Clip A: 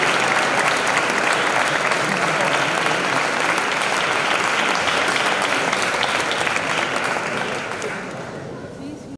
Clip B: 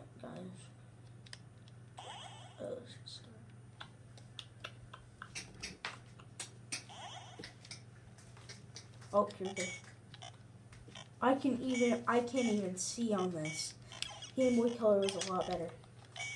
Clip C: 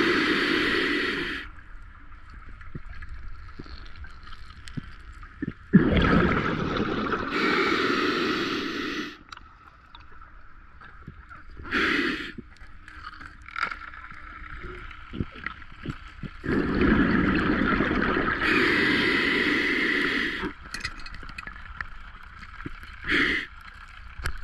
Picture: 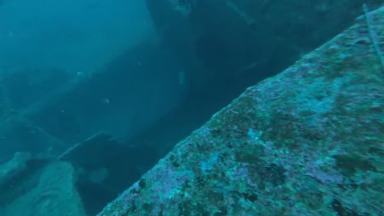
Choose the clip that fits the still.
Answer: C